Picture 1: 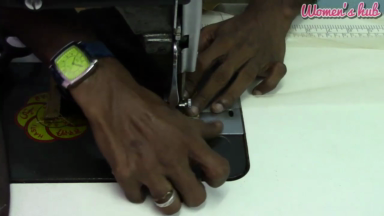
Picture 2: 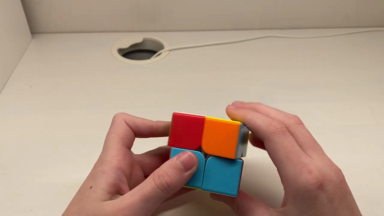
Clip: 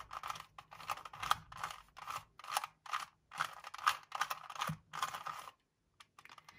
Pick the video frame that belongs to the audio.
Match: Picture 2